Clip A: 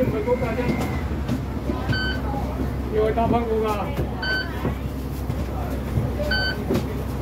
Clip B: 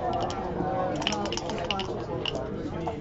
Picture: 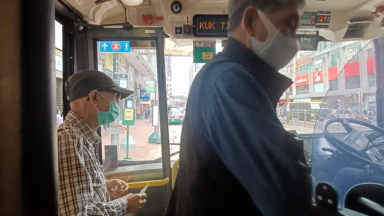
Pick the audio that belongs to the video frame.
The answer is A